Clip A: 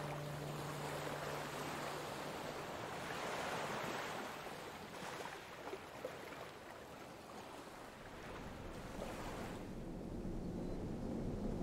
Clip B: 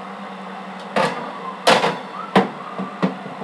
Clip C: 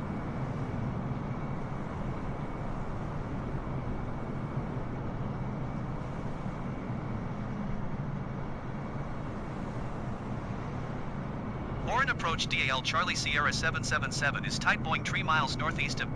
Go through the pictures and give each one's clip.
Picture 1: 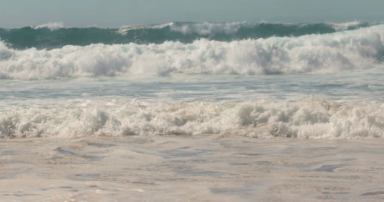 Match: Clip A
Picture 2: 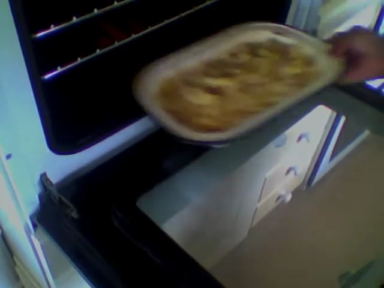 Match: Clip B